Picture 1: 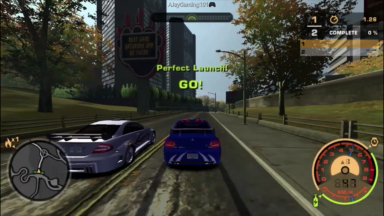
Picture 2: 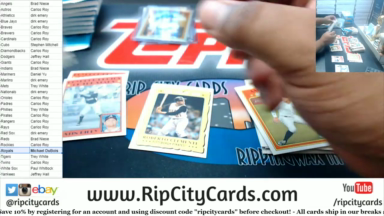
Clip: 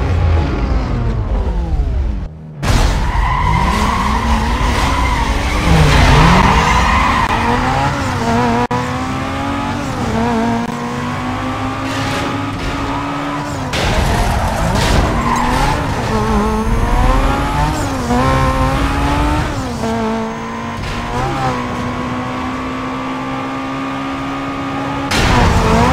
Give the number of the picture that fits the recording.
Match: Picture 1